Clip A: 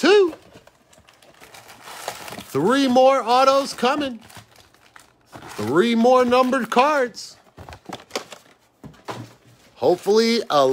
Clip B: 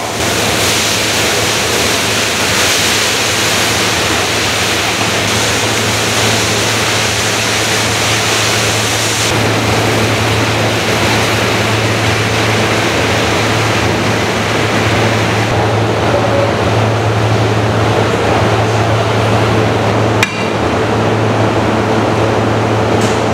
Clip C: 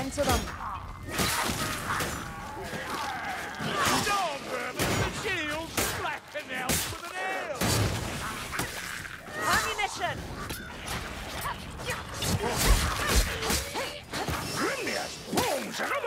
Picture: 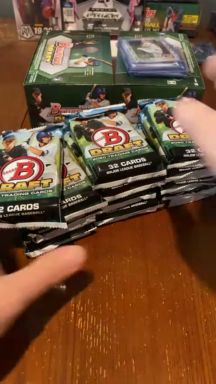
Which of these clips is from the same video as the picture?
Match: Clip A